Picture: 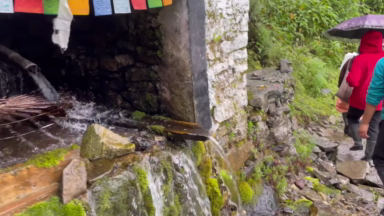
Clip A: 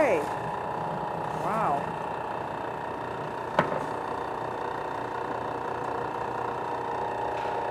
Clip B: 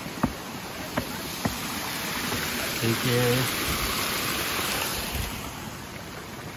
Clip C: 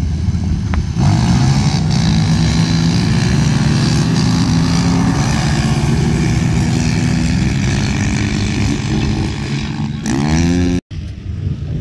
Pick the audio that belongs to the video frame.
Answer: B